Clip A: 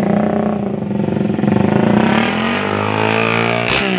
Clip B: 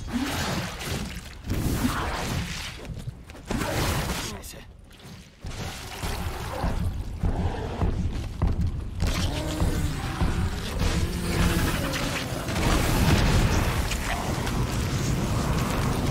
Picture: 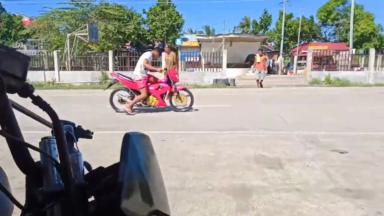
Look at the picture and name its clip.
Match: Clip A